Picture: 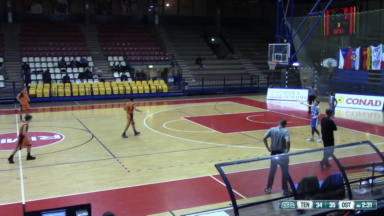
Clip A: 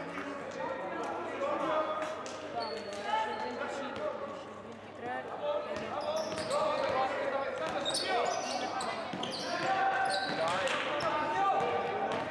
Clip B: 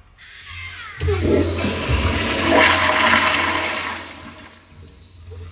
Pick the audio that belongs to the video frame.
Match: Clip A